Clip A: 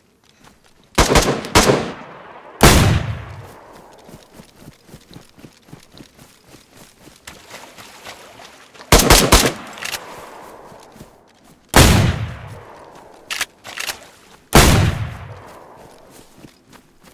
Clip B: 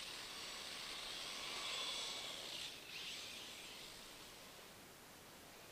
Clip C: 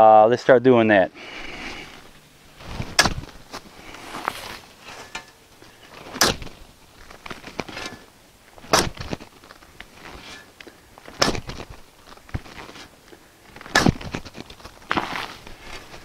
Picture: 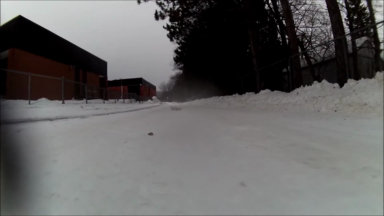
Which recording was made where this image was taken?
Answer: B